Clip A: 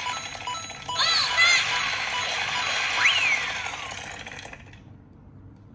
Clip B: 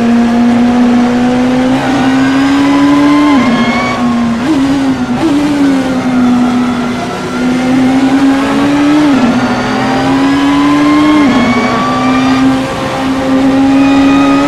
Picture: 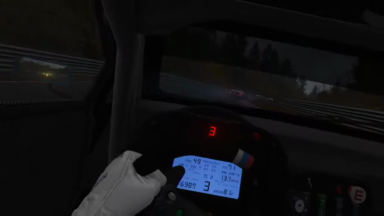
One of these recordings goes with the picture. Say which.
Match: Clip B